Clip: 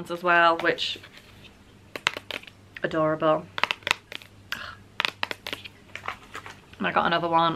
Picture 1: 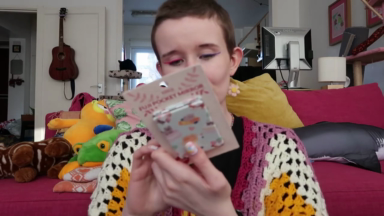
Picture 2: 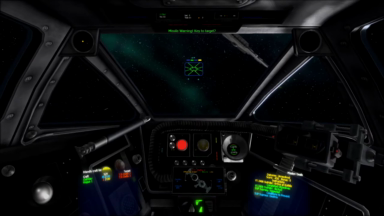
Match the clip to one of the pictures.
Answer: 1